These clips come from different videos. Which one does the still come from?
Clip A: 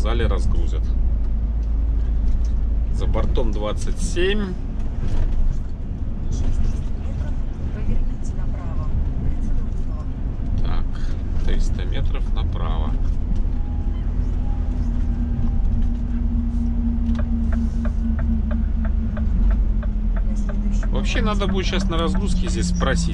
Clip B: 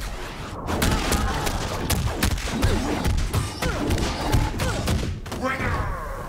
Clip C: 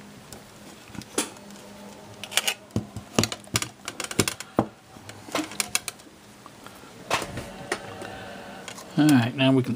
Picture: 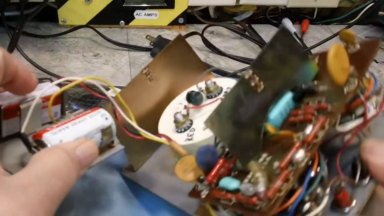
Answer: C